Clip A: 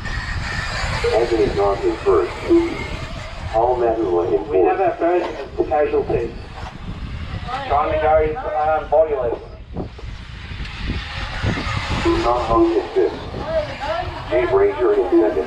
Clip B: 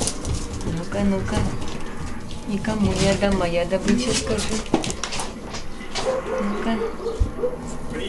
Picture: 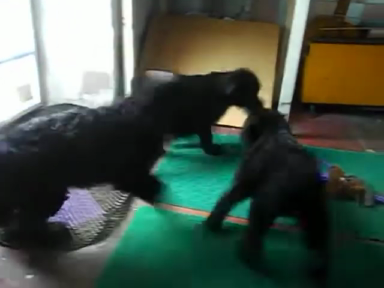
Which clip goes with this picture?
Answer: B